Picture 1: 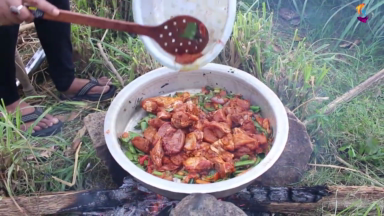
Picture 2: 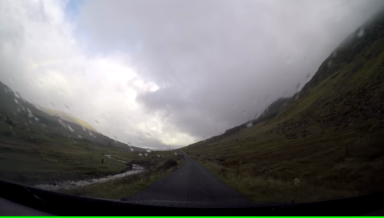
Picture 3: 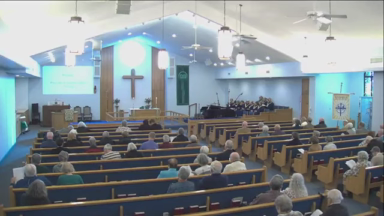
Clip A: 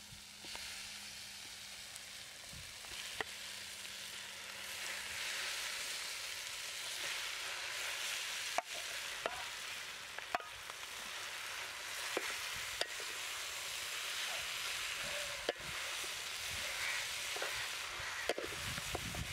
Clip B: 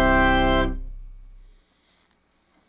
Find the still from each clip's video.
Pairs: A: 1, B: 3